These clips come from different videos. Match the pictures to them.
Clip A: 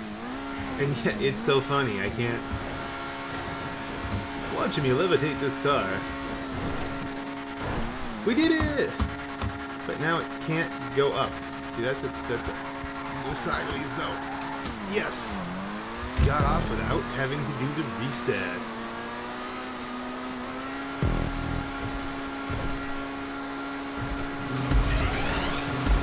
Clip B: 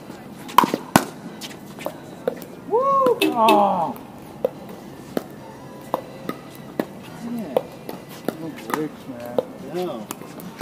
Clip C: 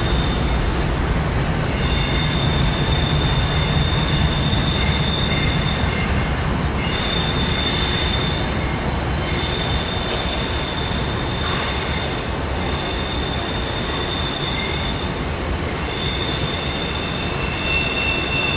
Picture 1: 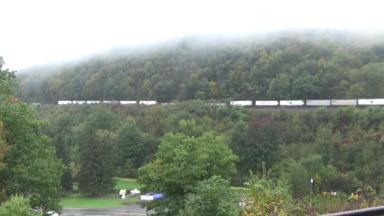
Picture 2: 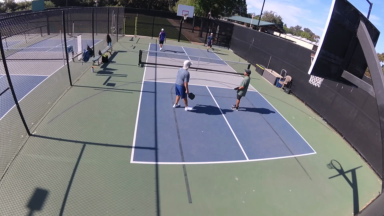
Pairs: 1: C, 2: B